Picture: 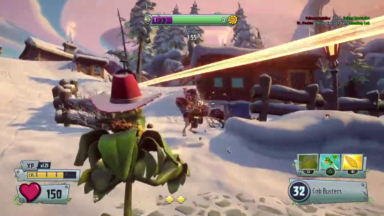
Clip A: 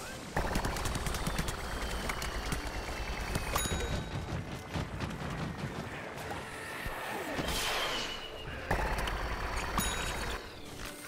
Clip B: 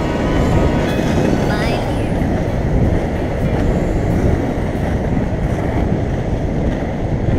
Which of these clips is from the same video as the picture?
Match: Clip A